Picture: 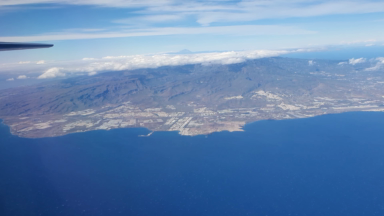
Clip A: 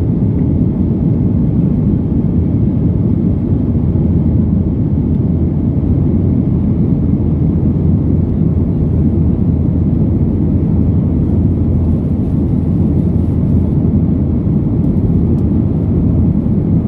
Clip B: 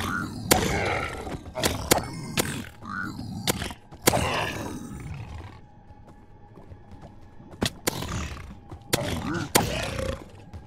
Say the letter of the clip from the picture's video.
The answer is A